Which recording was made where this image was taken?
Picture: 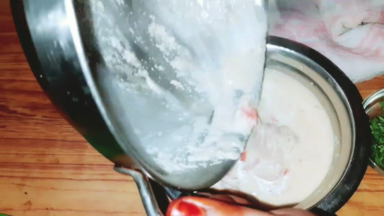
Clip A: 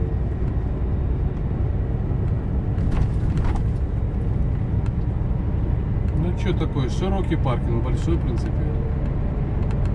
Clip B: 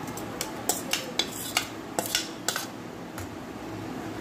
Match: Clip B